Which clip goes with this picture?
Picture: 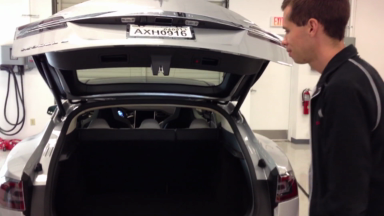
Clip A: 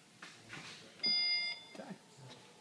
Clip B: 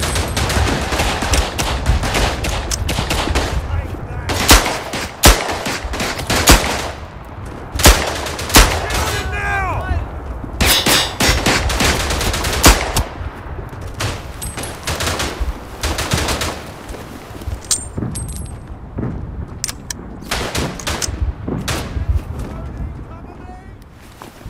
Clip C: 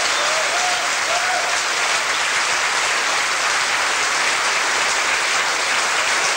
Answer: A